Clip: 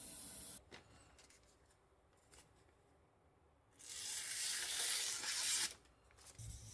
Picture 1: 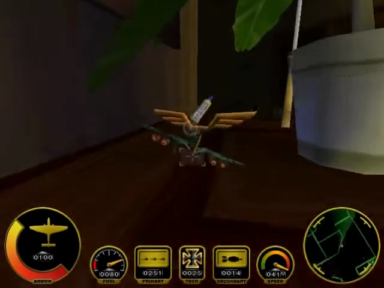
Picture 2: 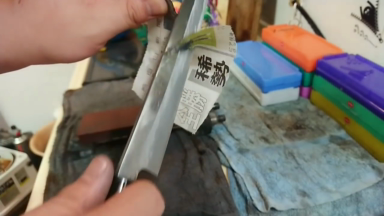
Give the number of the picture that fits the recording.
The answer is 2